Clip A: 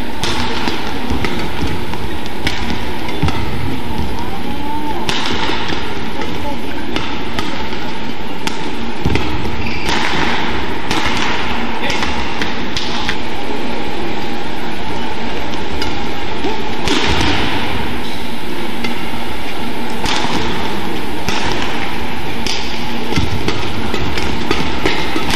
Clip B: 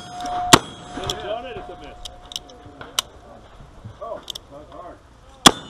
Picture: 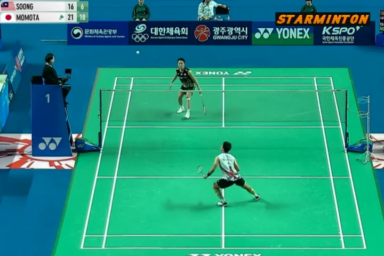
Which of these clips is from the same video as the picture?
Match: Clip A